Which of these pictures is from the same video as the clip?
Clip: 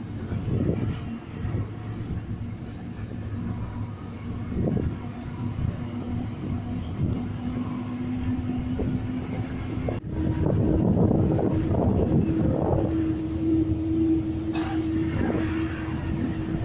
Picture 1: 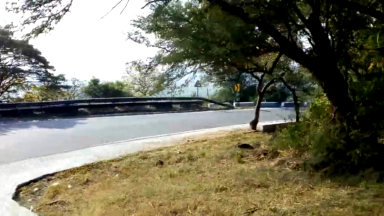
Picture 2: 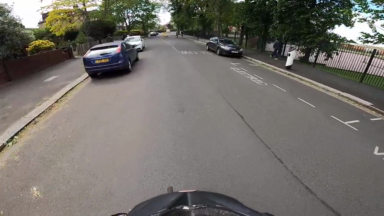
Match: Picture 1